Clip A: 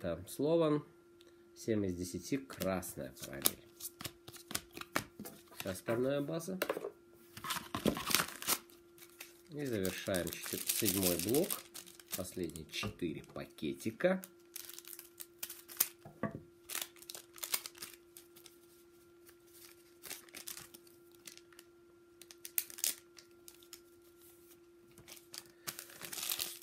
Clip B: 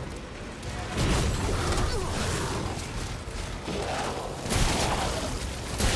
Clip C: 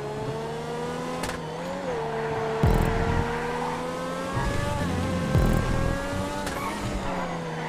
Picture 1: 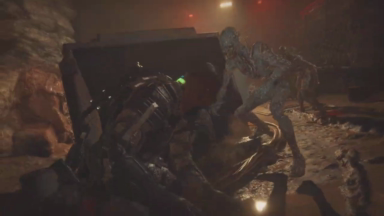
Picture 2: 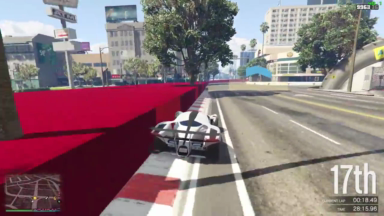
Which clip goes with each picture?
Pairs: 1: B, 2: C